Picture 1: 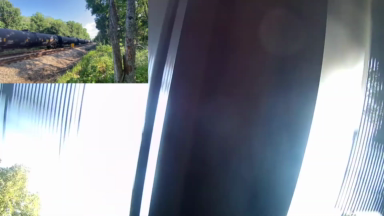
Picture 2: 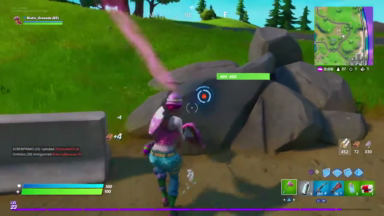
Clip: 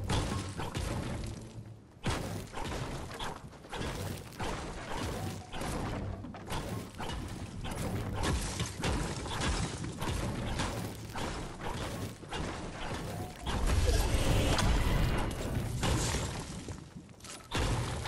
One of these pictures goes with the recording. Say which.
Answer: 2